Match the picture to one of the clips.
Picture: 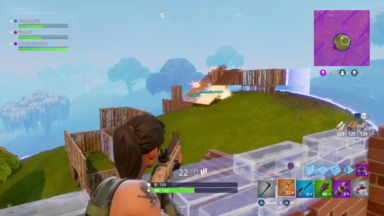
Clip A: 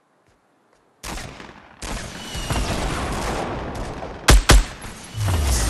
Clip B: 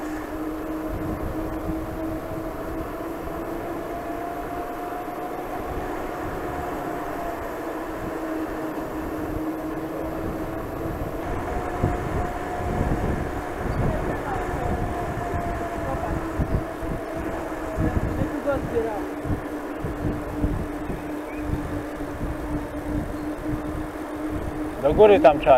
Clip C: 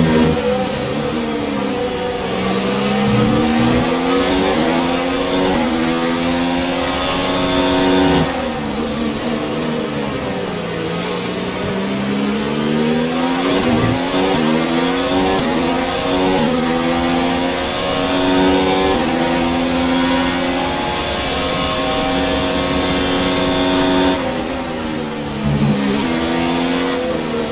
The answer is A